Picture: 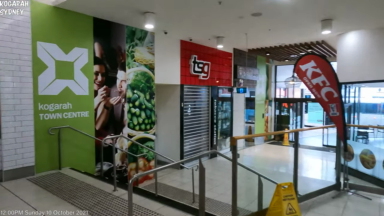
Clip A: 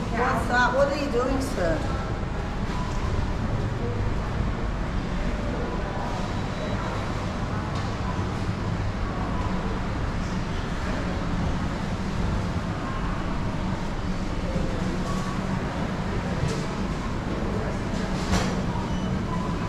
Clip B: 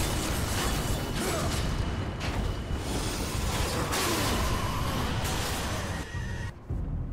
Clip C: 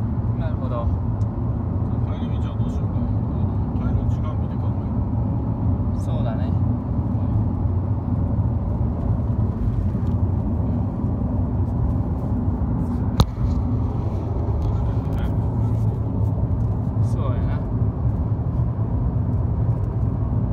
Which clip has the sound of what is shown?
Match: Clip A